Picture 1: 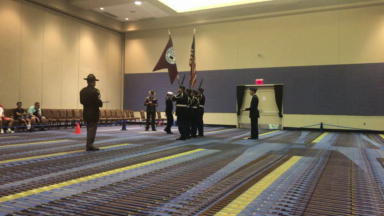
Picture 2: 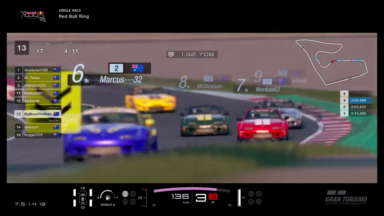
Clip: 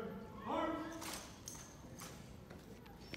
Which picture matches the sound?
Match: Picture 1